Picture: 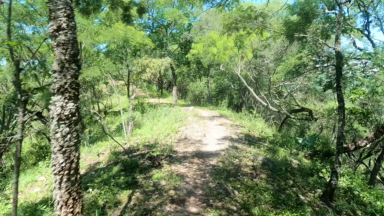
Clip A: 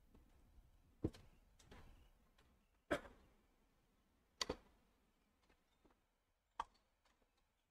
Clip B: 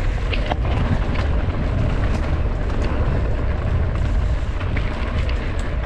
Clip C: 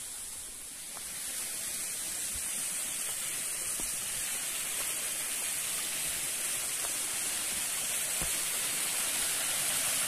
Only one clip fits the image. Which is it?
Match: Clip B